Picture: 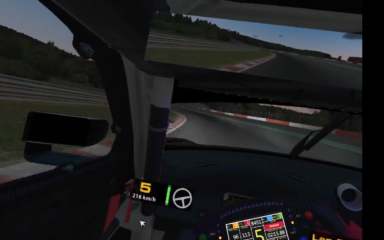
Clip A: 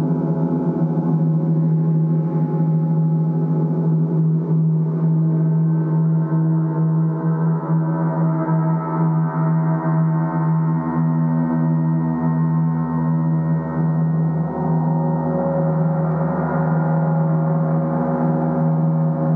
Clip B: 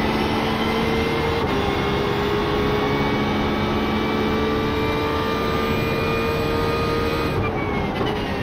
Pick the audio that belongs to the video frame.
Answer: B